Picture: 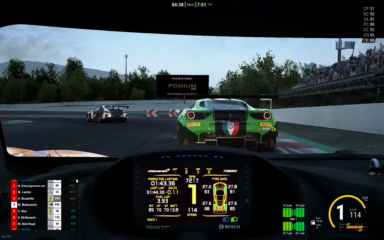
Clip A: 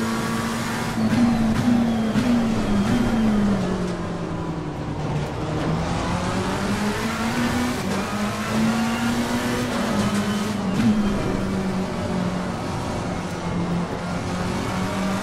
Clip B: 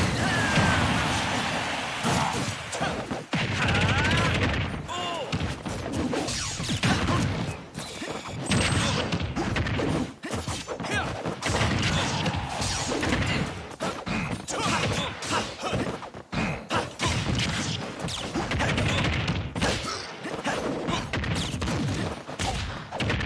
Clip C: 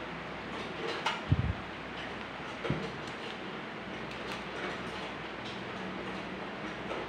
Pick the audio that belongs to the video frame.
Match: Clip A